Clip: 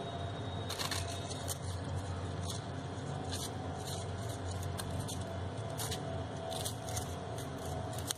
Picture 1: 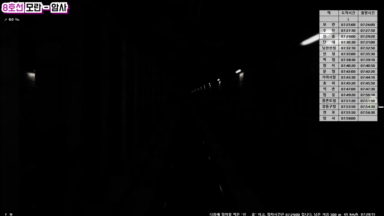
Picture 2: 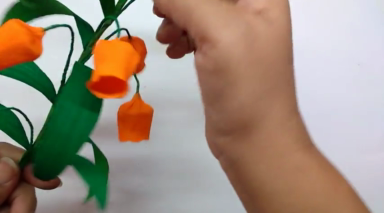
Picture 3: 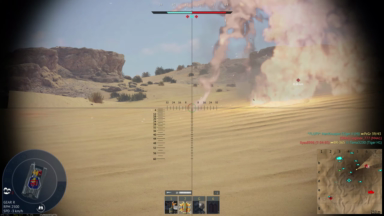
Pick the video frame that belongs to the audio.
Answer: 2